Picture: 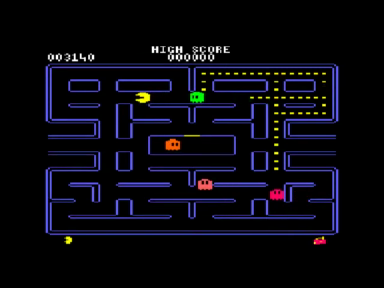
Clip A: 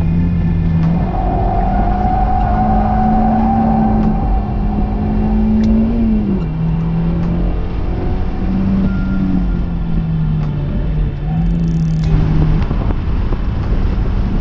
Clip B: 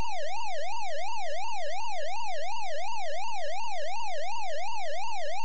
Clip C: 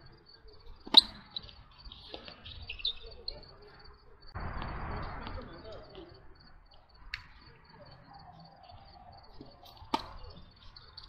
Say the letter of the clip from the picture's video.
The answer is B